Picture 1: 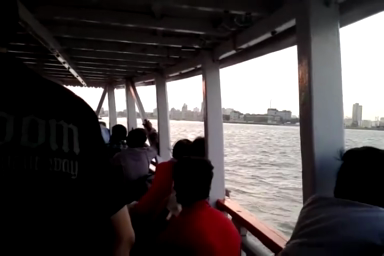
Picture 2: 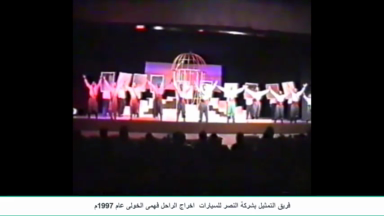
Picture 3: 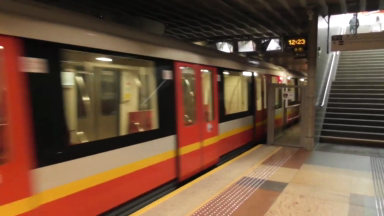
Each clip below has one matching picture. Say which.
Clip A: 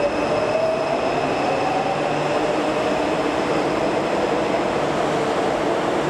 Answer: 3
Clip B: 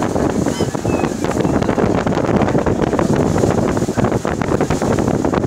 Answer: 1